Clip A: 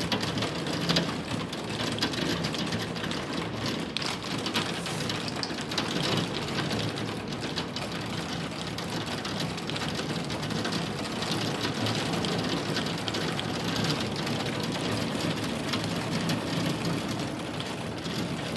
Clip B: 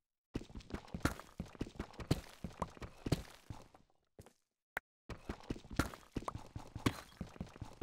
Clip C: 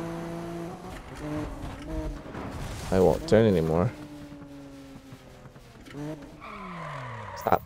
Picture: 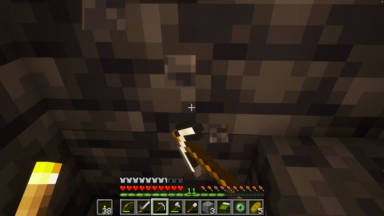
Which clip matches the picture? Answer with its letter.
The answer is B